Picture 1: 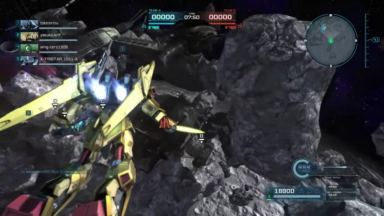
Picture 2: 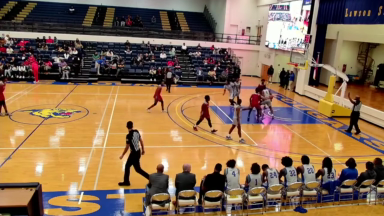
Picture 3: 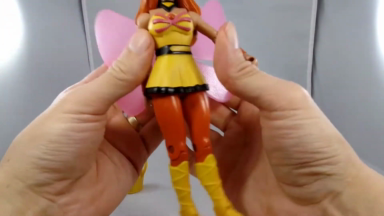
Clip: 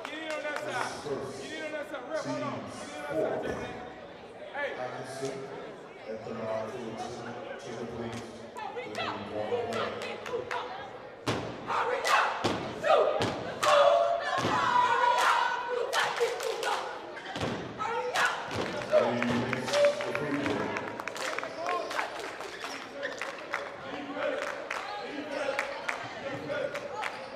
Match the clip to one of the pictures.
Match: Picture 2